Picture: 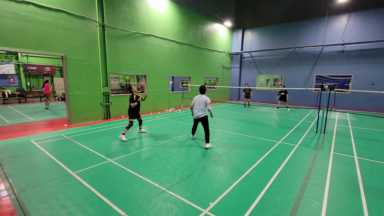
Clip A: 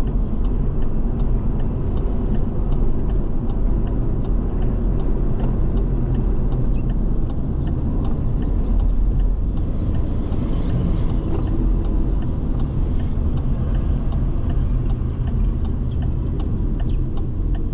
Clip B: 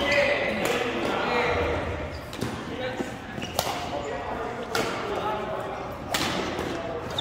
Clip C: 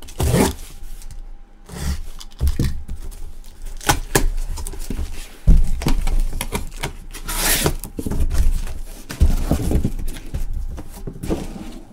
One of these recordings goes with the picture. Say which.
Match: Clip B